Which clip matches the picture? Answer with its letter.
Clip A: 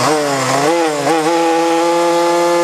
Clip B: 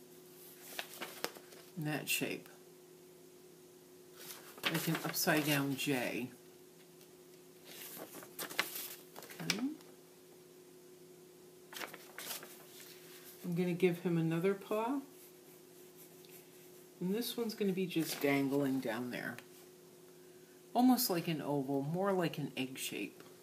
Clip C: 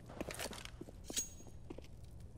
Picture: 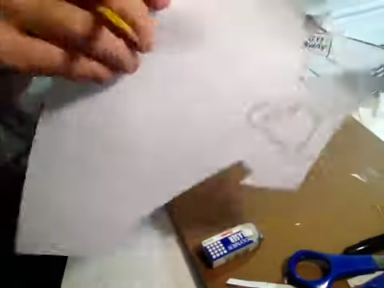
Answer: B